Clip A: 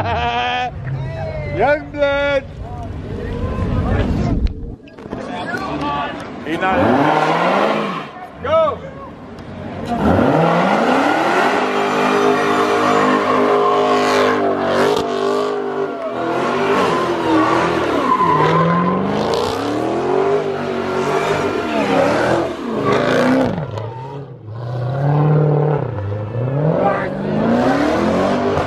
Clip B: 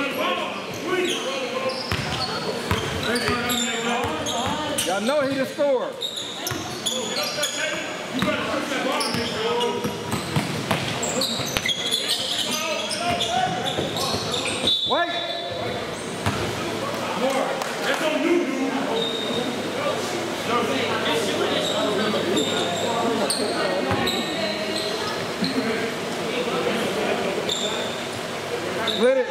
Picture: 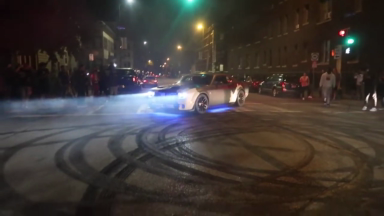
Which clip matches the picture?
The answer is A